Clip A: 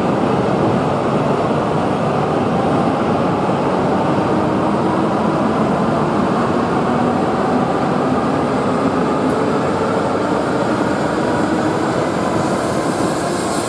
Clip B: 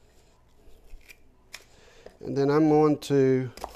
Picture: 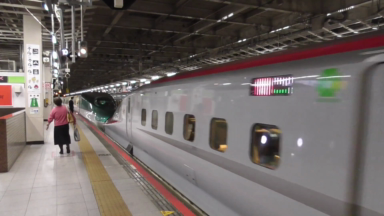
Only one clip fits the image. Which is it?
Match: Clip A